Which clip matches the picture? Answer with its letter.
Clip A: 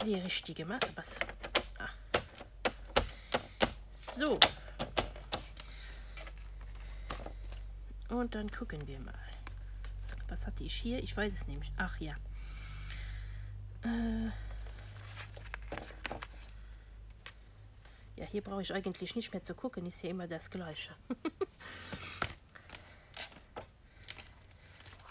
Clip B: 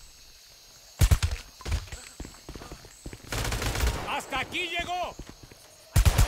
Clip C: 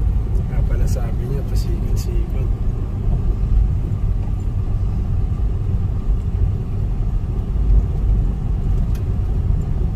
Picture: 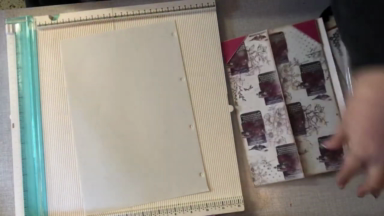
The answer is A